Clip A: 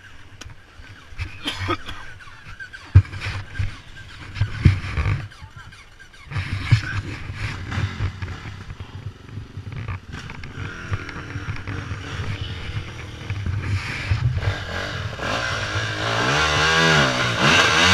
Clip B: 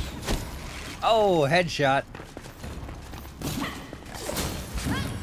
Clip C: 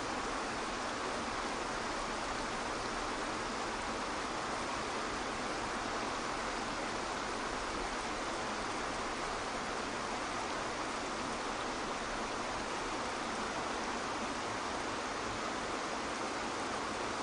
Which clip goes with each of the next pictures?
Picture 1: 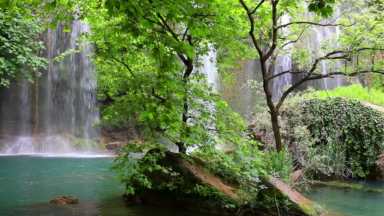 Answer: C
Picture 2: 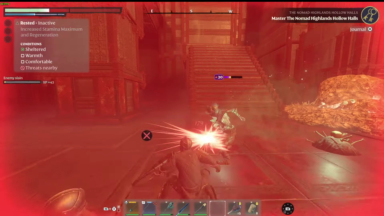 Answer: B